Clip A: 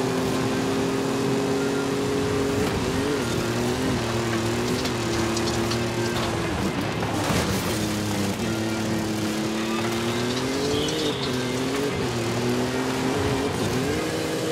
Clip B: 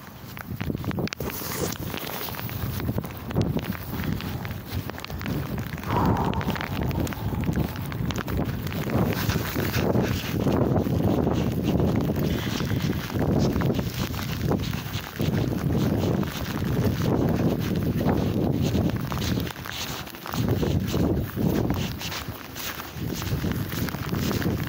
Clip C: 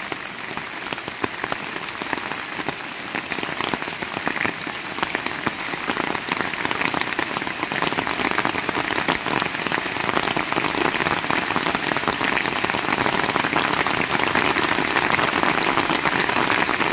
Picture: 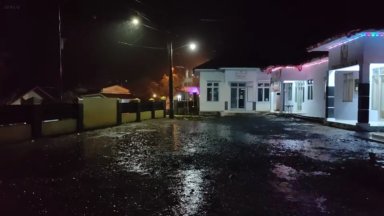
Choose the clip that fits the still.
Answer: C